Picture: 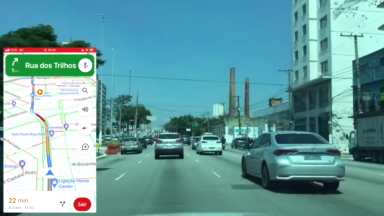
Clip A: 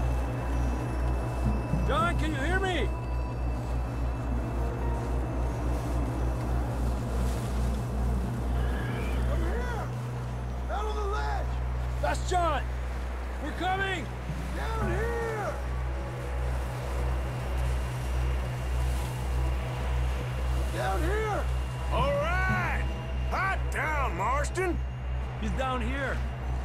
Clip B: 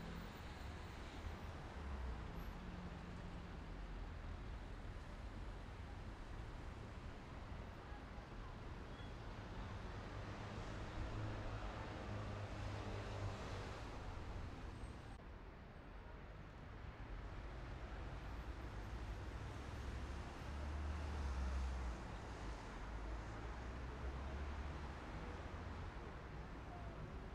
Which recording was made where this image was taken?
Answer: B